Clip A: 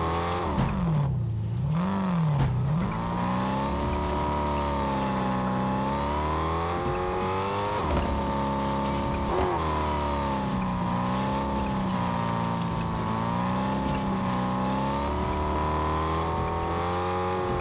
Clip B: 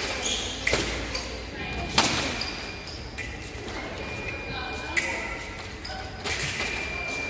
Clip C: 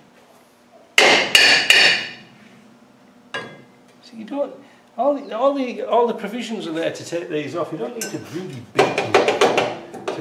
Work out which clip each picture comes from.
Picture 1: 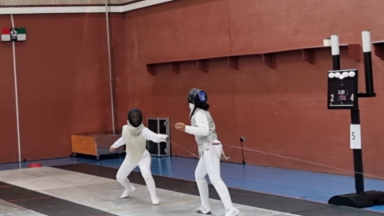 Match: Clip B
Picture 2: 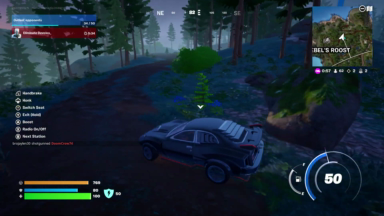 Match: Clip A